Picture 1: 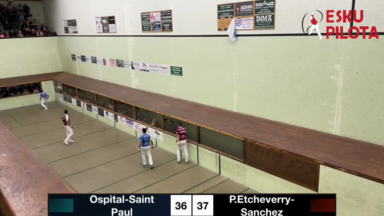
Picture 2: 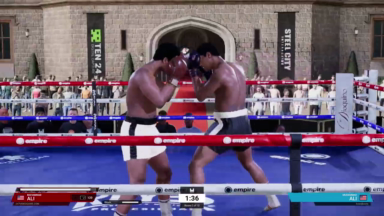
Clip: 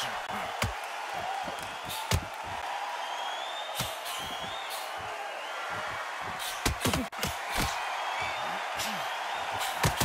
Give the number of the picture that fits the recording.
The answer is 2